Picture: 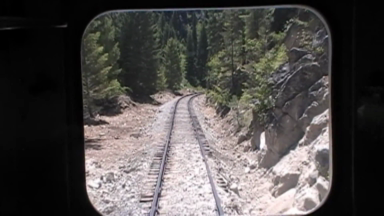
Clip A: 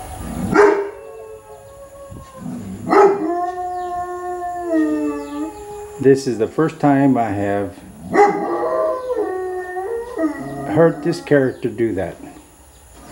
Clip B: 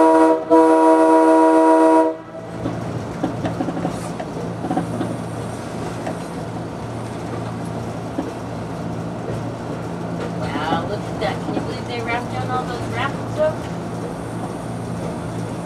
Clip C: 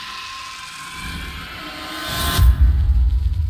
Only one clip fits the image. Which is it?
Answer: B